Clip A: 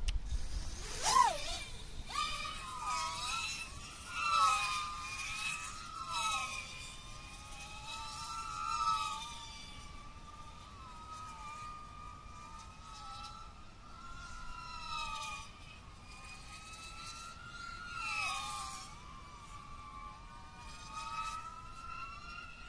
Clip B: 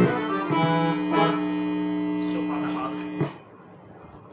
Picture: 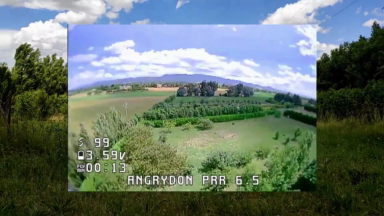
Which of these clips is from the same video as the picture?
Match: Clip A